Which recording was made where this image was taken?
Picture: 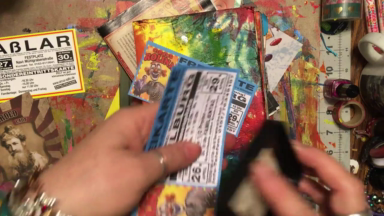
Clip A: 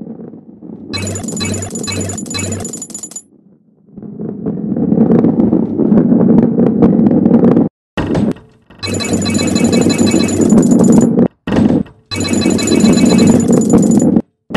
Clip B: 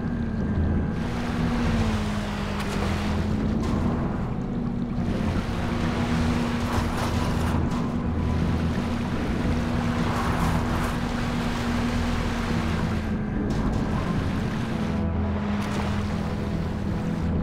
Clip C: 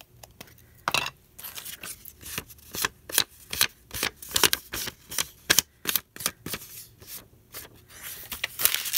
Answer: C